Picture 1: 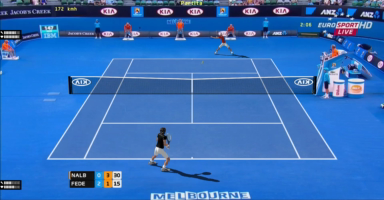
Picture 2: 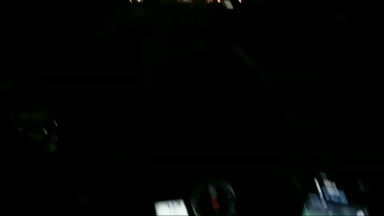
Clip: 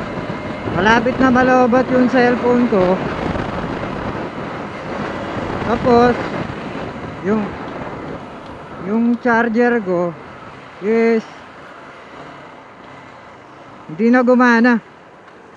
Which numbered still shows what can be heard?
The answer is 2